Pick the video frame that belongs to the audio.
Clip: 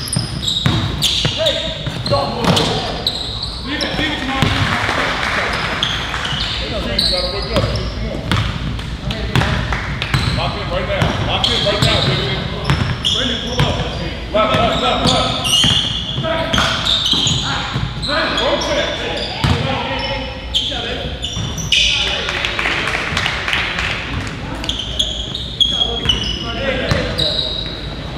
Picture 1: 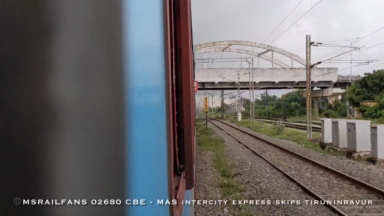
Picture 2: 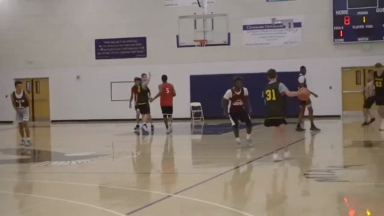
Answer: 2